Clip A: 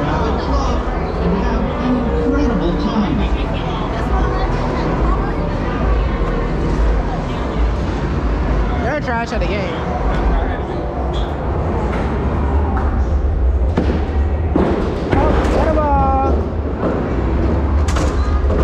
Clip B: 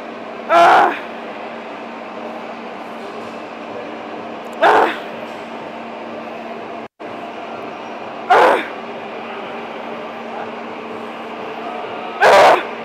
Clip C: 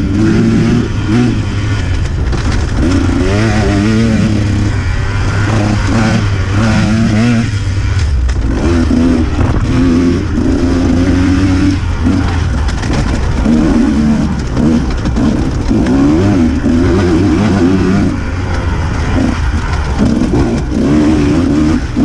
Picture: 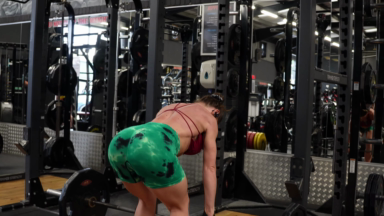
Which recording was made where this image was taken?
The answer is B